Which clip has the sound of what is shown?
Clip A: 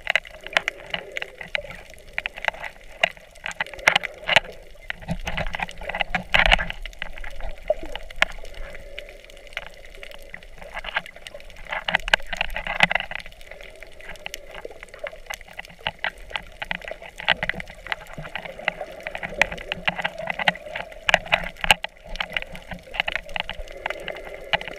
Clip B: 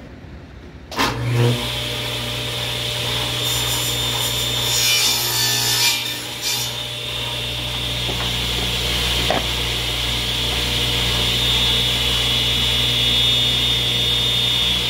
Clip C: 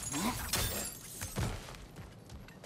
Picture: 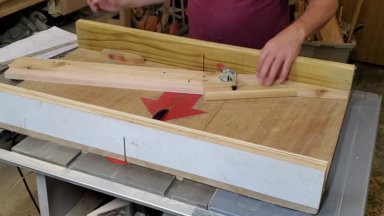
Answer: B